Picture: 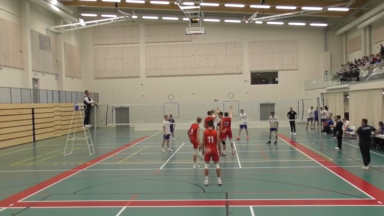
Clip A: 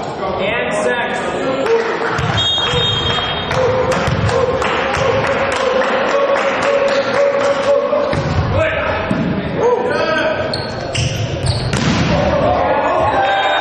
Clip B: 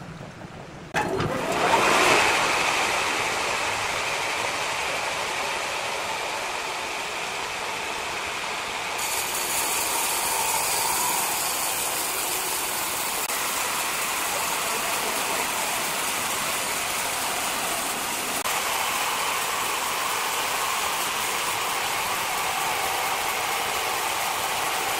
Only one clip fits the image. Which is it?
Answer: A